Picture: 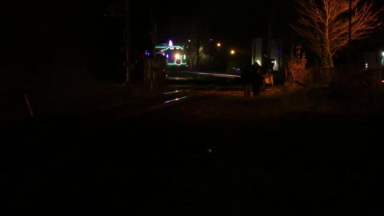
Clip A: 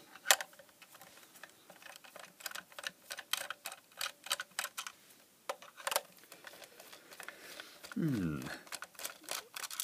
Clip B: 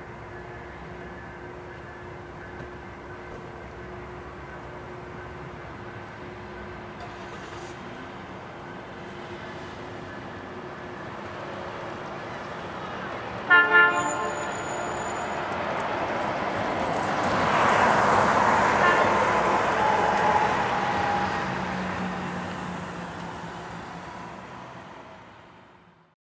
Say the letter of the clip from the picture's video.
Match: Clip B